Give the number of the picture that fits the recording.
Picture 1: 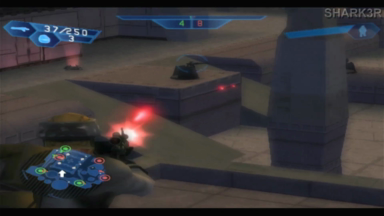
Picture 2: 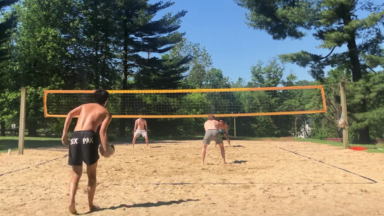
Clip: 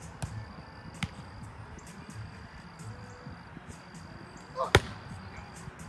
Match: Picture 2